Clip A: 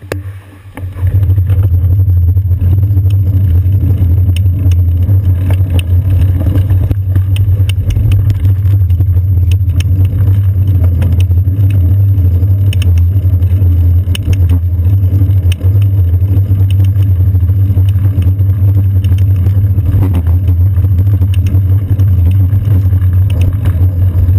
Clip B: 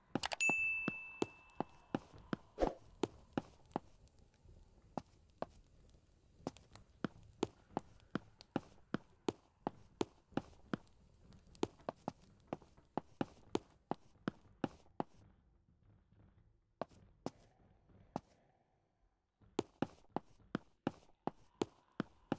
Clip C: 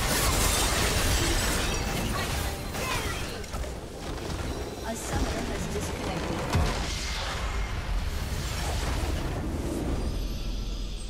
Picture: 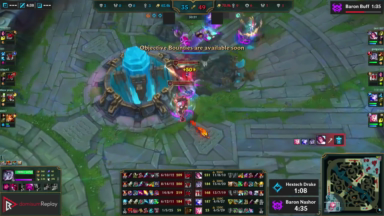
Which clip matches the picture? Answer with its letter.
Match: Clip C